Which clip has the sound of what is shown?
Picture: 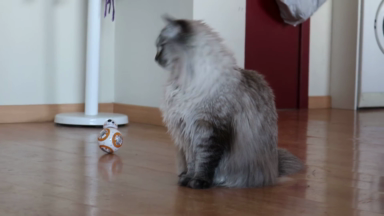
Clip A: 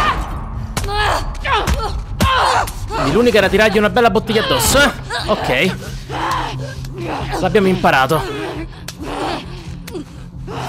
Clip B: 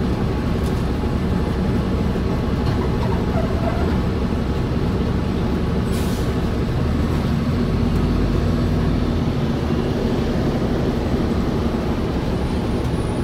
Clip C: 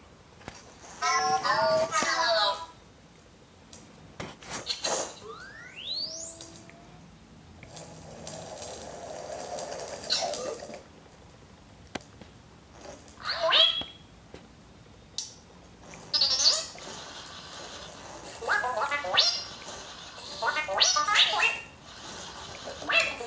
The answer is C